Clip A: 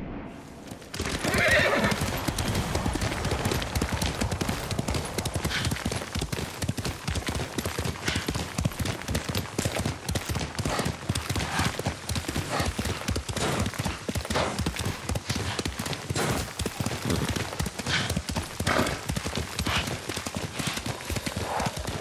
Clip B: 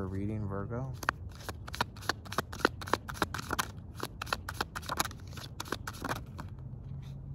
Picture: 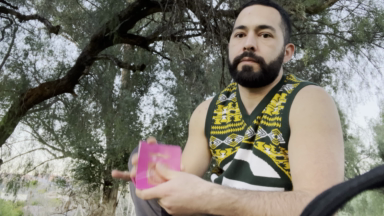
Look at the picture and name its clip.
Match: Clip B